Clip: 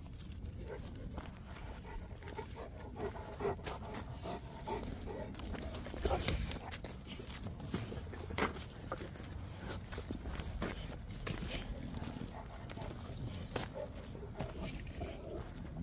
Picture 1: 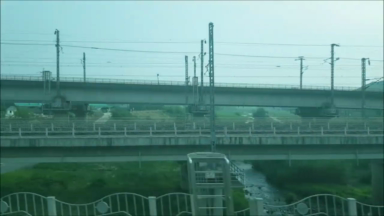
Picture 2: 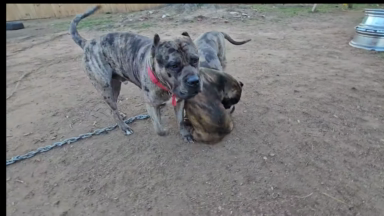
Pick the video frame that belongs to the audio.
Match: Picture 2